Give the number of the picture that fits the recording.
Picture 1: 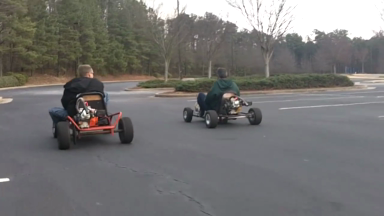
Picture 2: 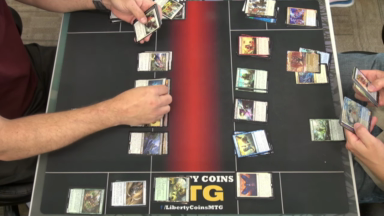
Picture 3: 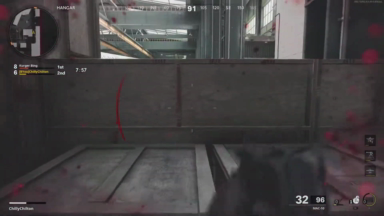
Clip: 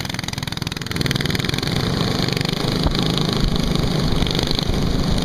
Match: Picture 1